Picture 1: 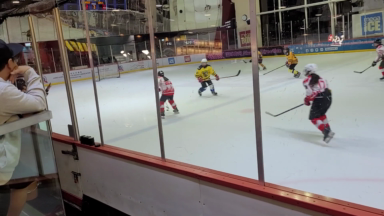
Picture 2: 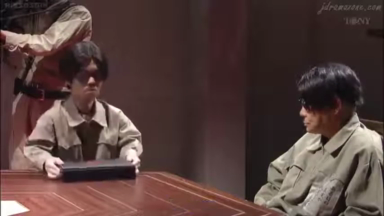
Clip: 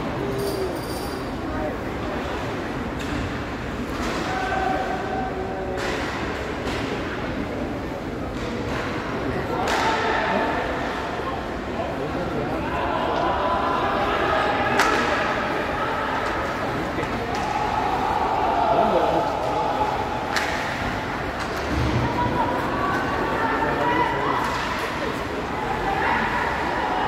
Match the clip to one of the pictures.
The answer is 1